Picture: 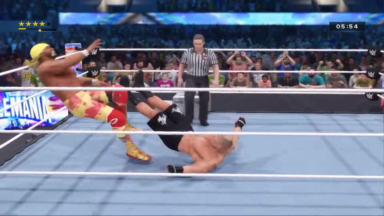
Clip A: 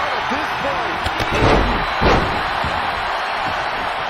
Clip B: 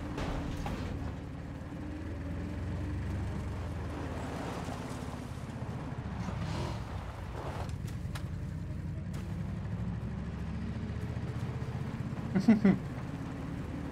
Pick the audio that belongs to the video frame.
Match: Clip A